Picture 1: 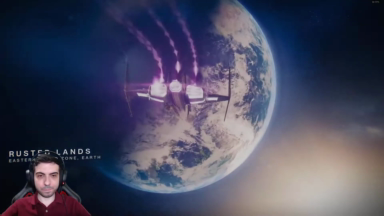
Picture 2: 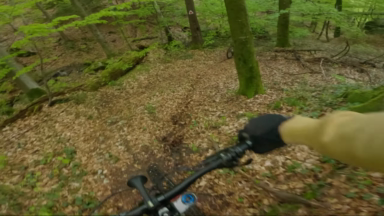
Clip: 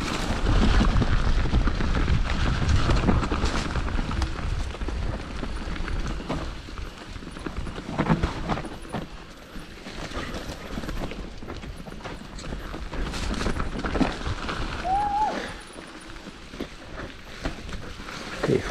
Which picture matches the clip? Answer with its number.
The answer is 2